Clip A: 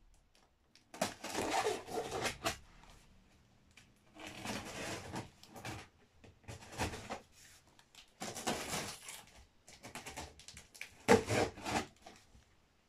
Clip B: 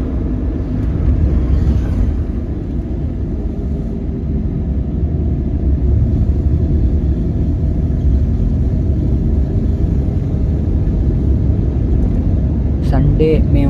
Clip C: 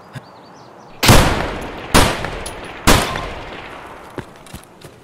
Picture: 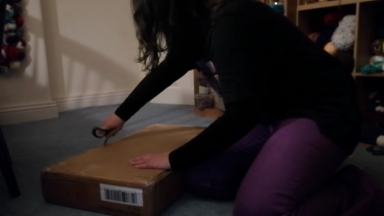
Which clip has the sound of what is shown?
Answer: A